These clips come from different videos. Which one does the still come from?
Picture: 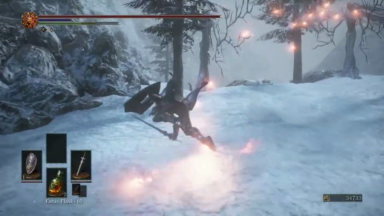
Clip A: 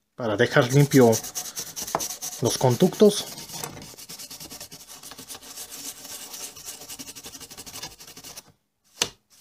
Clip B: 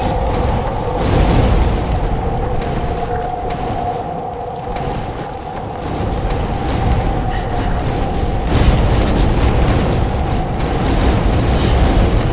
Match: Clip B